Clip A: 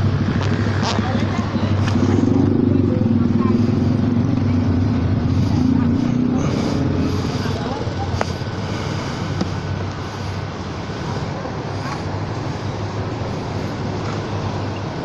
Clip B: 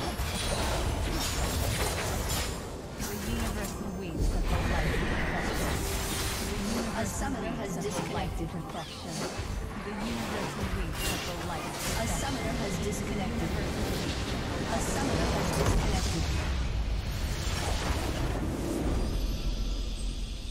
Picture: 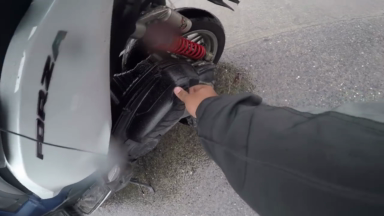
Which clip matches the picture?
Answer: A